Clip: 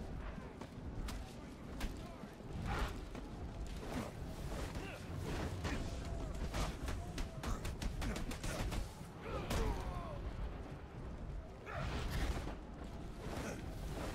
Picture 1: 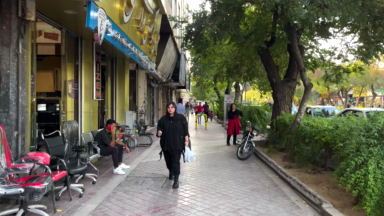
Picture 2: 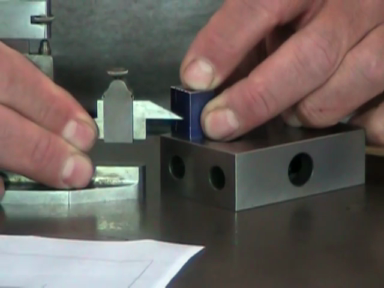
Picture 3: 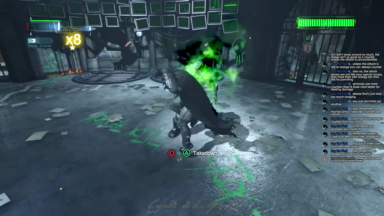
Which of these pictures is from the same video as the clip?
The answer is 3